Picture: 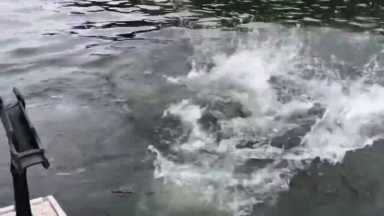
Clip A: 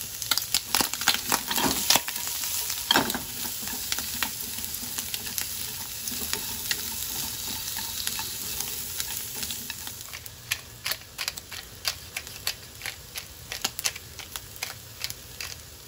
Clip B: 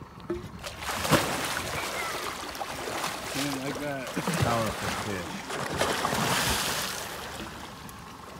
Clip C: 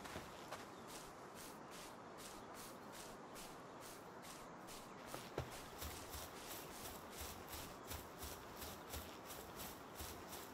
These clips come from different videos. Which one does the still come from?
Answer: B